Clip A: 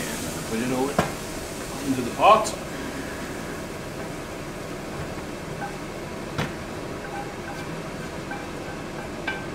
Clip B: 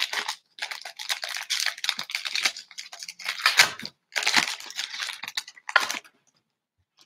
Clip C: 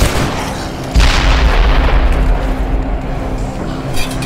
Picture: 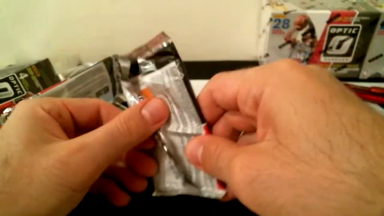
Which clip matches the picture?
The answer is B